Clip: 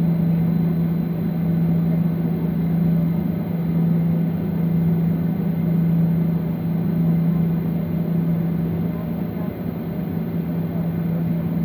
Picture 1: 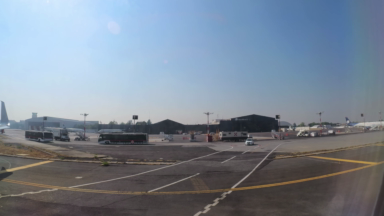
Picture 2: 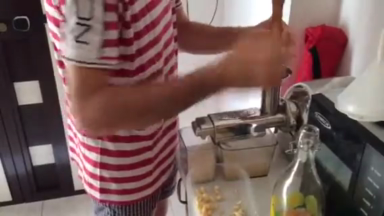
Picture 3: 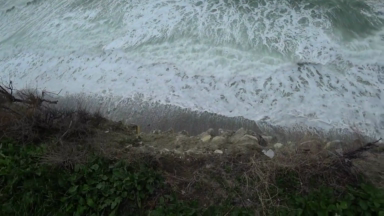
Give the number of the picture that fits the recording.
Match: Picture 1